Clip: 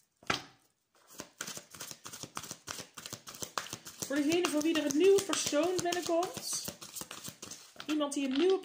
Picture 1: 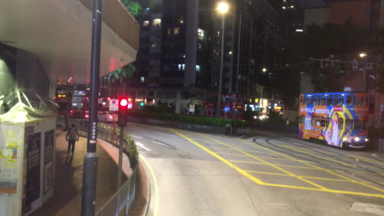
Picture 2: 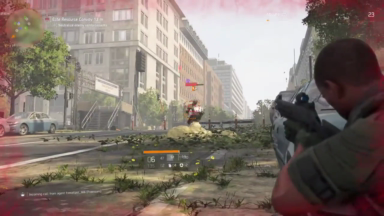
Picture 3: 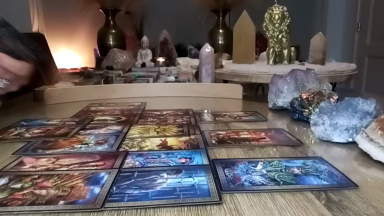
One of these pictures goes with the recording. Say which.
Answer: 3